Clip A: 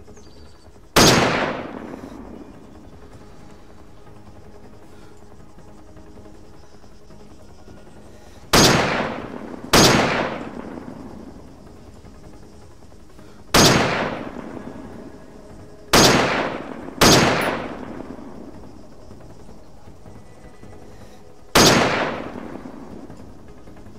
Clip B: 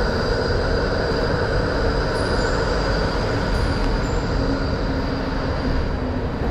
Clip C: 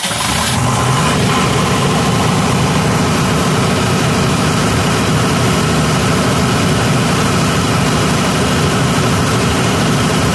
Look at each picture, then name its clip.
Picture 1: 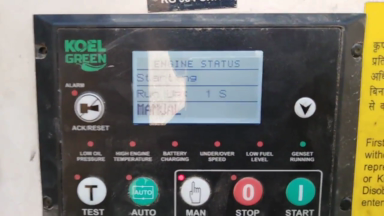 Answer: C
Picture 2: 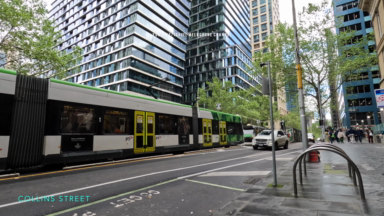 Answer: B